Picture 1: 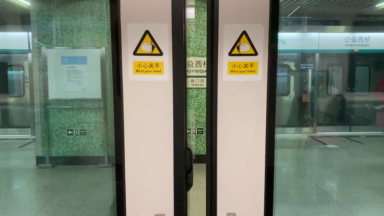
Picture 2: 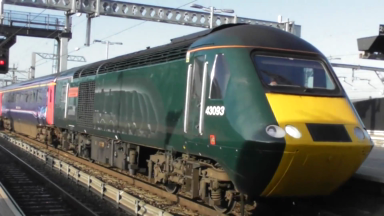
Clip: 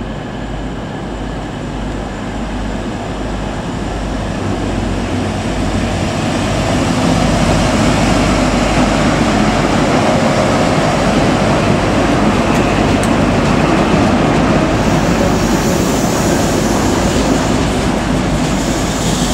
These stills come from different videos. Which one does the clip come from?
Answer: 2